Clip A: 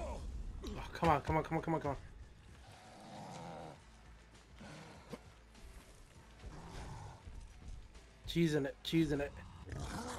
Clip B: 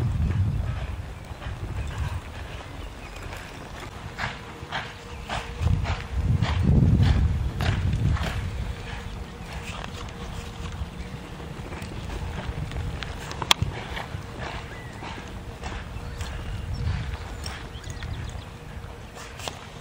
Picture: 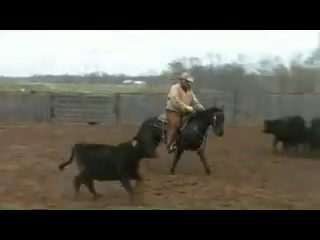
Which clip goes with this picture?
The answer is B